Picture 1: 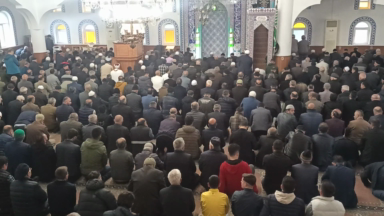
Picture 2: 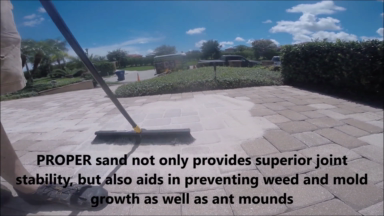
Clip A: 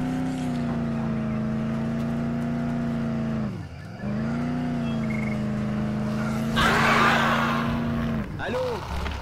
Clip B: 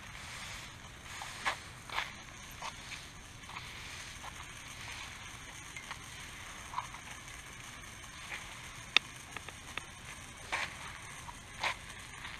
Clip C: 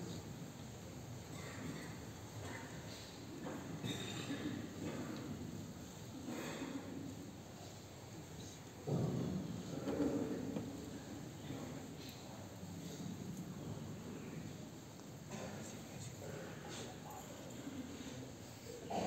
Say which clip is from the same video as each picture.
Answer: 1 C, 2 B